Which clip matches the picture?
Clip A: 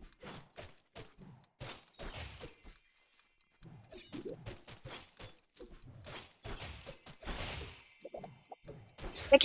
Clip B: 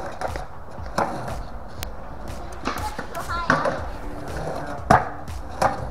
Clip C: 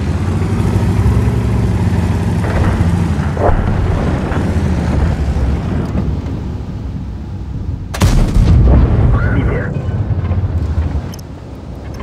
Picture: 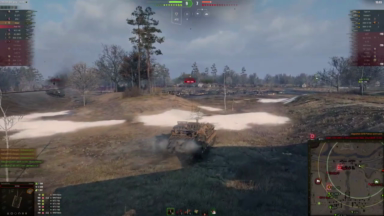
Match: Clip C